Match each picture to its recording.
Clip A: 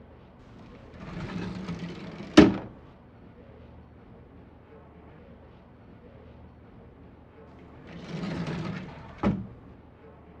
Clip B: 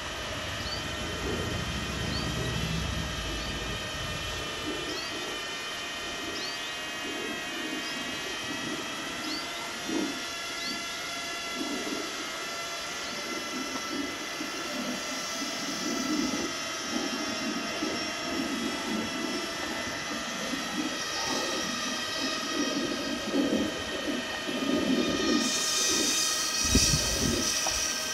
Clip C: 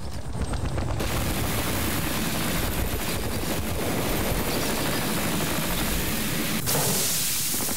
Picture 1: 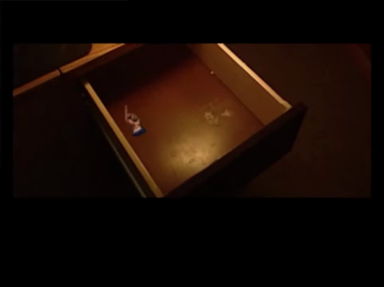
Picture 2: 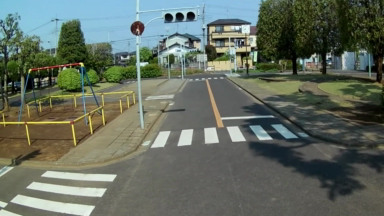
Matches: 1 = A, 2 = B